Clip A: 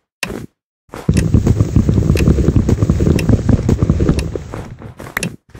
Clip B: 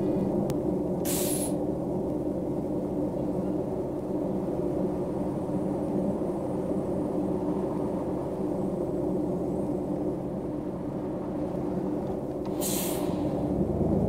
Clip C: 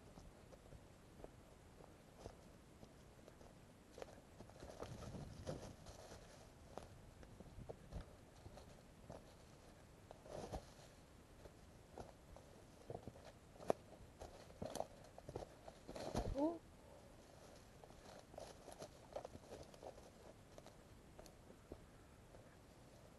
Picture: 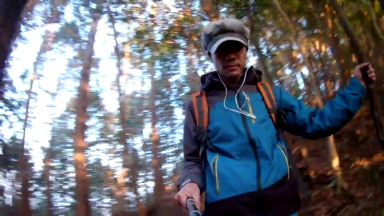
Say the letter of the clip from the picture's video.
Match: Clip C